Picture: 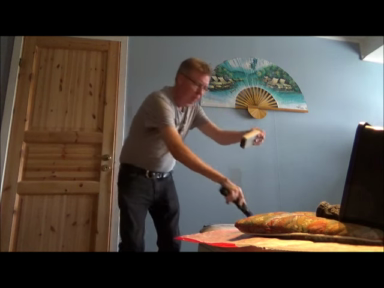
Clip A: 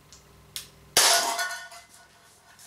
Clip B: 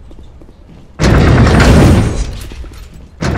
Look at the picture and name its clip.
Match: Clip A